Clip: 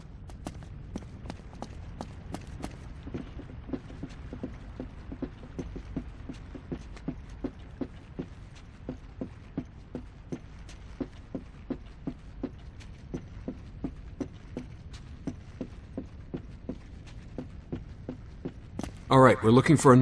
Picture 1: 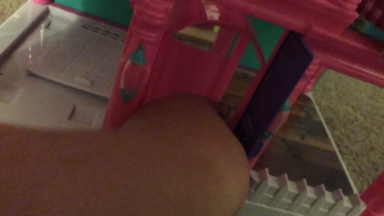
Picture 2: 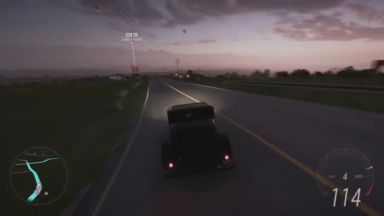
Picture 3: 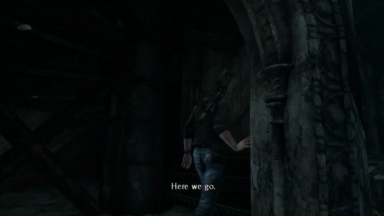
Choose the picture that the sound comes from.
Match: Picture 3